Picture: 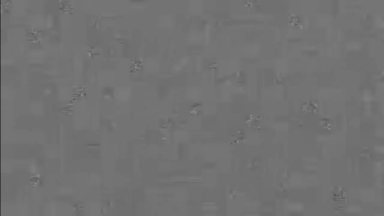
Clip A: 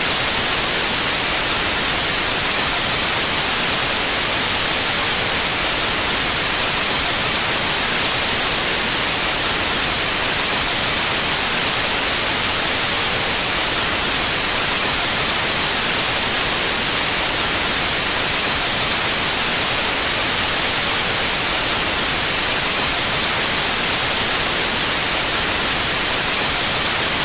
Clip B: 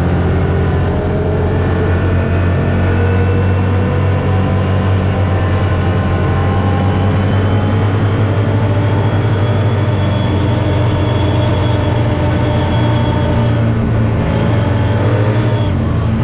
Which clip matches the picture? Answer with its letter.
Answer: A